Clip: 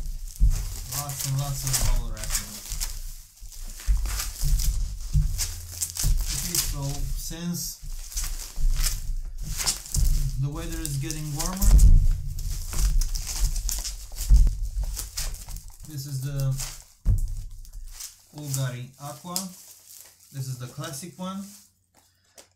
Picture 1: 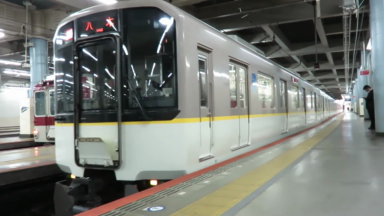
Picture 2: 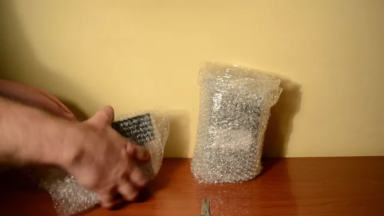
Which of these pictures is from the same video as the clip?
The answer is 2